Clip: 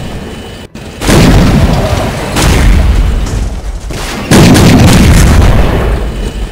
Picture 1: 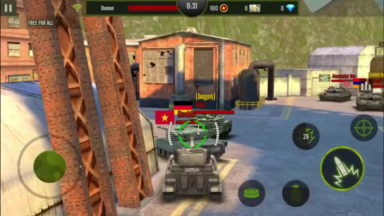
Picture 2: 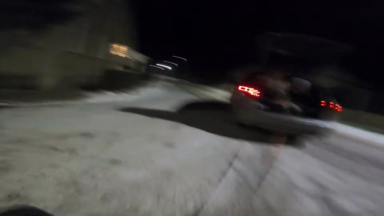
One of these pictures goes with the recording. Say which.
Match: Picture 1